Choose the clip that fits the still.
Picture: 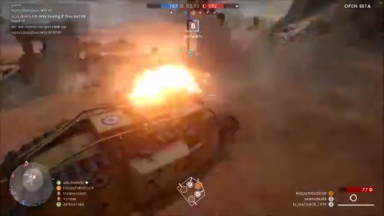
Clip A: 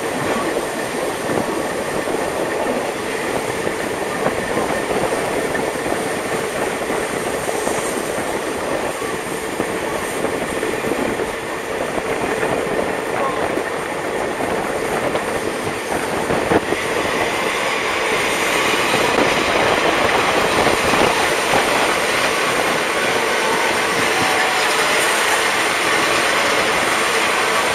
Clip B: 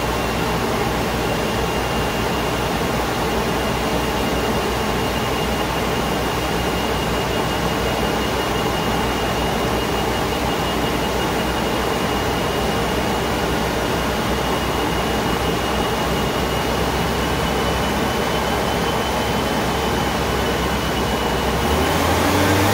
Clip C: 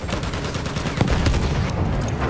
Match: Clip C